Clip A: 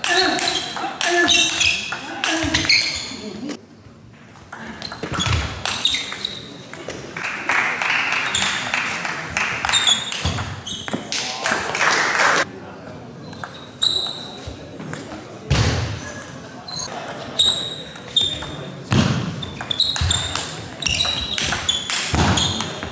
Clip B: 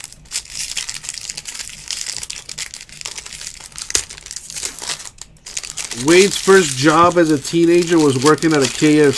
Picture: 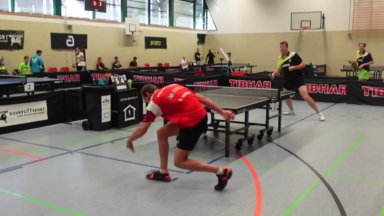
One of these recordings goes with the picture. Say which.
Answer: A